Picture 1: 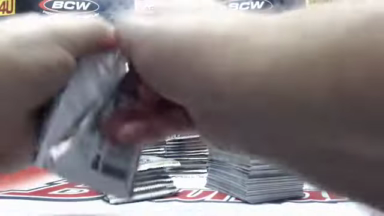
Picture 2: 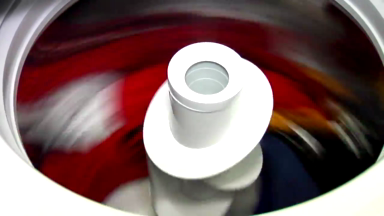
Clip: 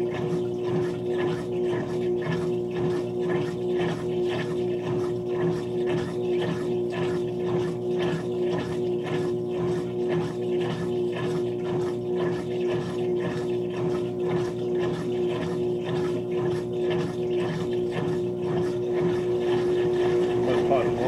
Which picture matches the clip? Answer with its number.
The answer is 2